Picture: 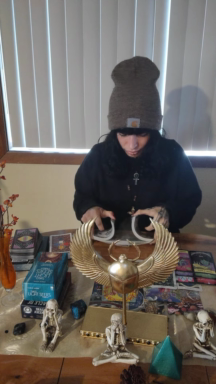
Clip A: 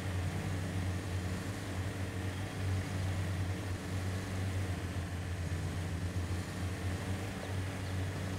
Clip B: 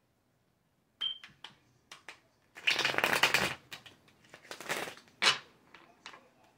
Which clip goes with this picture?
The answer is B